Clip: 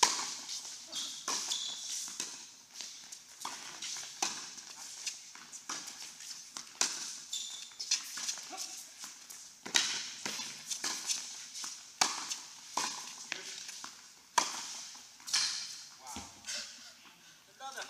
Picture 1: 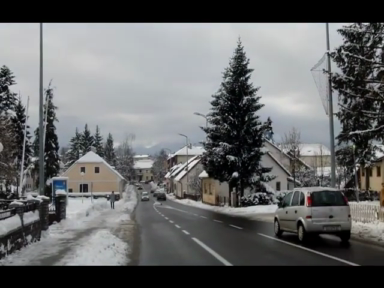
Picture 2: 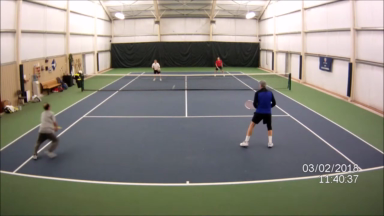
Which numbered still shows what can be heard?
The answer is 2